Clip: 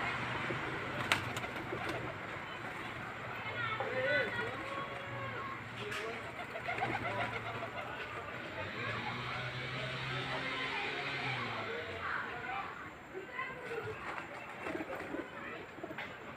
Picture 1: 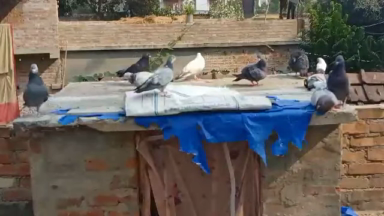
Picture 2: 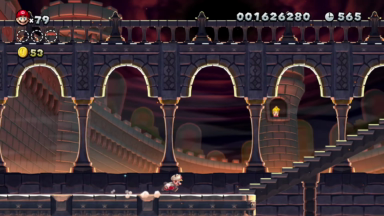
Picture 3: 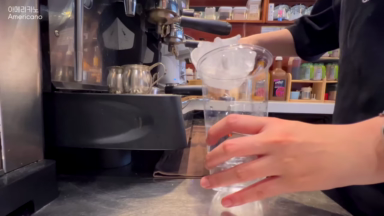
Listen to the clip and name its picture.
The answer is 1